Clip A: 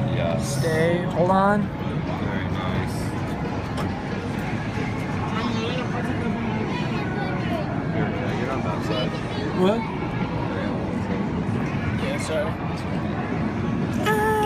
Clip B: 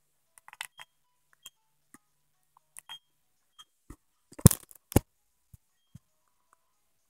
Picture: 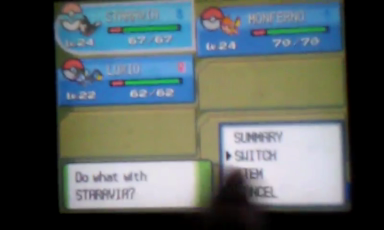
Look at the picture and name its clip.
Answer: B